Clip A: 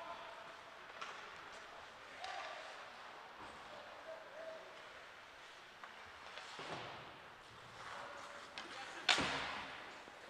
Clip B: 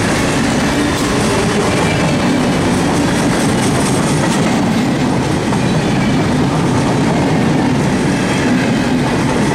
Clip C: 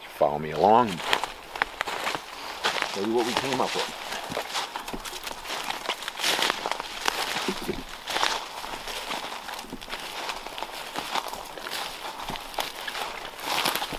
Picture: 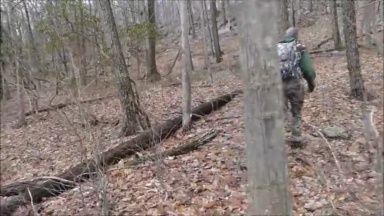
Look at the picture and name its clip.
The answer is C